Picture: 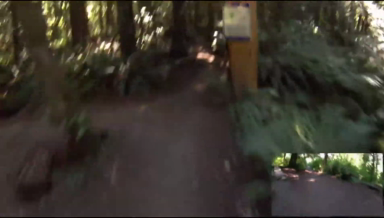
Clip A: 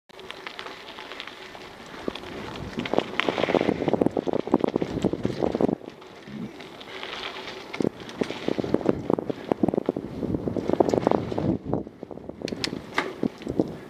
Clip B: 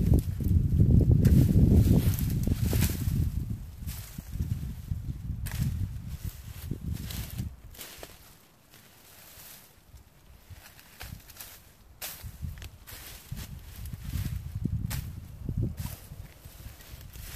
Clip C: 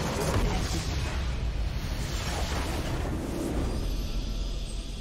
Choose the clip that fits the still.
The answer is A